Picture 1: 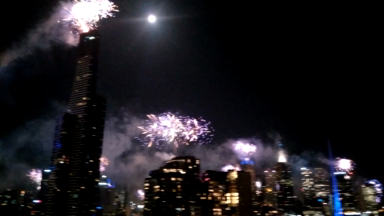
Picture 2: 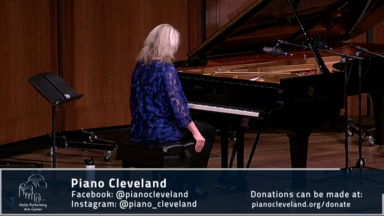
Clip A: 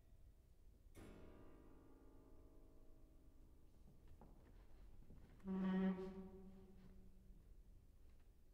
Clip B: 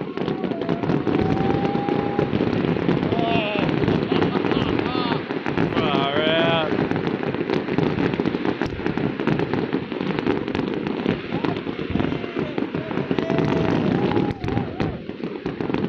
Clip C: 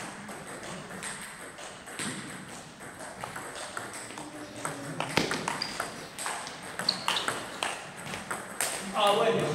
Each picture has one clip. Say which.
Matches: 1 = B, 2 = A